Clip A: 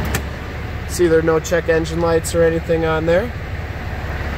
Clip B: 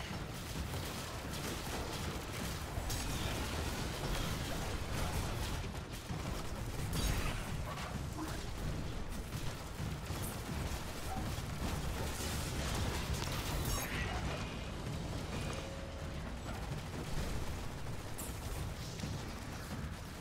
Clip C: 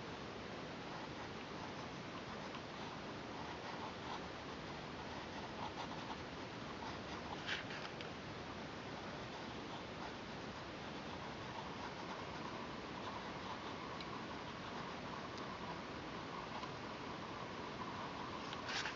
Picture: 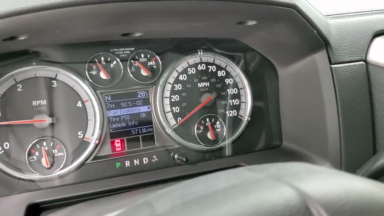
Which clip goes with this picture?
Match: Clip A